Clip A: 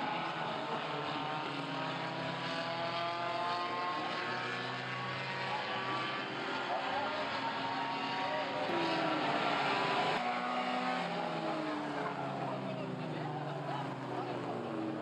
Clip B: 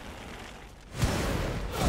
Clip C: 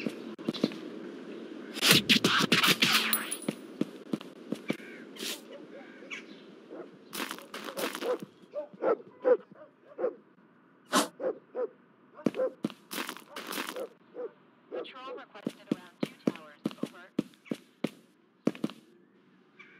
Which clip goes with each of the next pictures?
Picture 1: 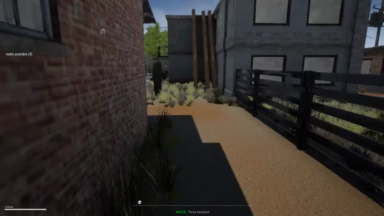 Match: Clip C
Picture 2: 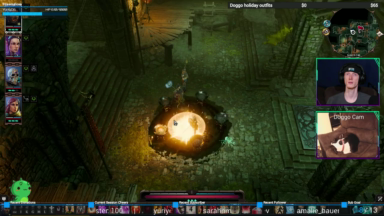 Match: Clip B